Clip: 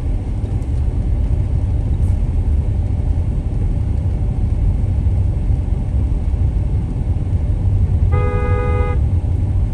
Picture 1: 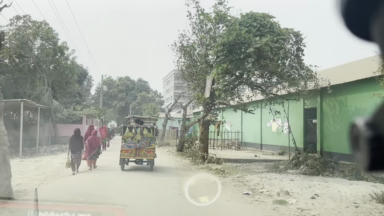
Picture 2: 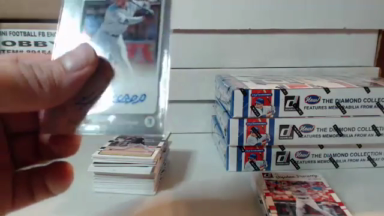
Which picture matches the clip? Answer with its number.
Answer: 1